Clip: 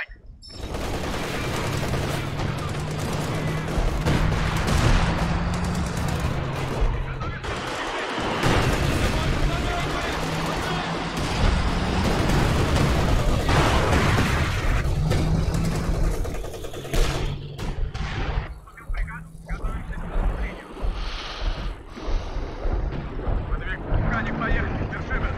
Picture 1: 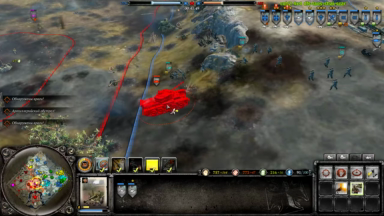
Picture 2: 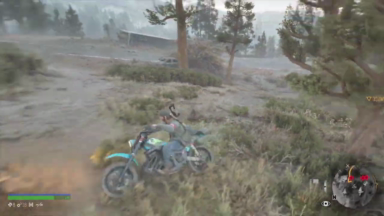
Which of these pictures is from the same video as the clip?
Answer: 1